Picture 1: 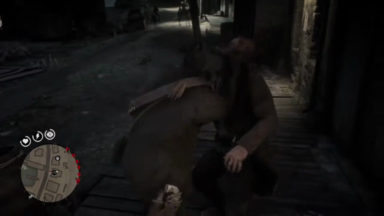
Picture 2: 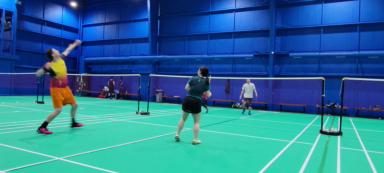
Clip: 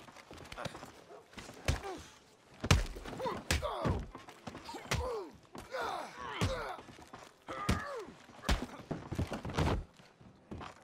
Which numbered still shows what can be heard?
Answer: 1